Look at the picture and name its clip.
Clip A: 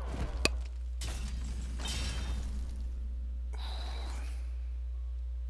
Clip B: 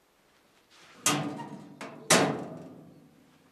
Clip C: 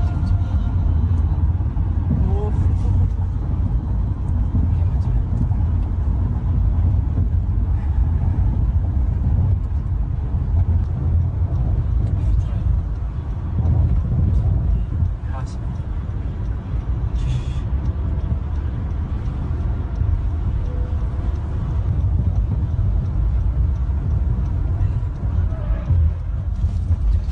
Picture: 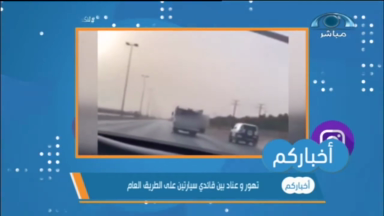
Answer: C